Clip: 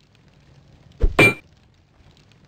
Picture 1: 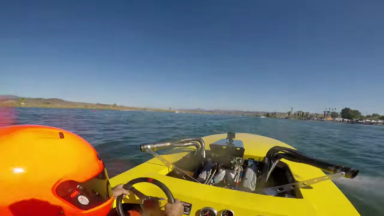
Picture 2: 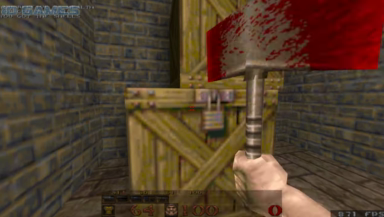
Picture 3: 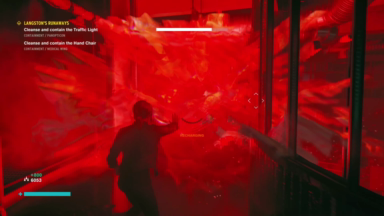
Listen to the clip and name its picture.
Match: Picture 2